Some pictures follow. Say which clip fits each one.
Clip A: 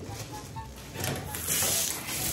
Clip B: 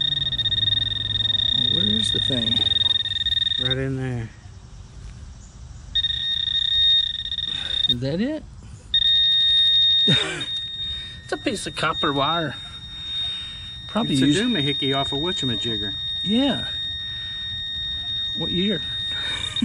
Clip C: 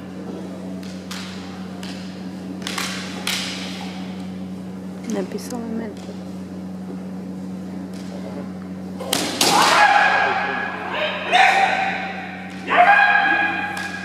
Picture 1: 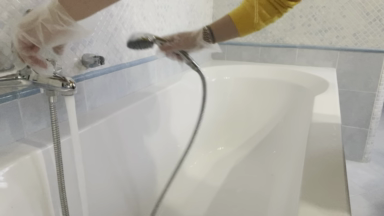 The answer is A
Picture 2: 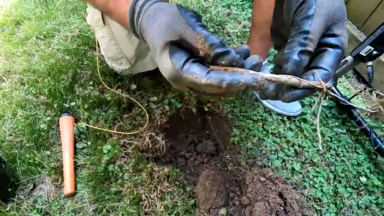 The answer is B